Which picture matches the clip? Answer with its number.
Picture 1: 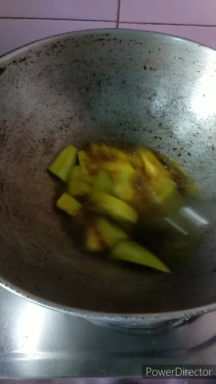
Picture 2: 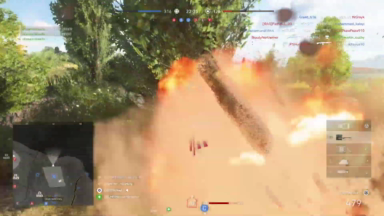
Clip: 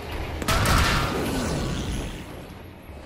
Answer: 2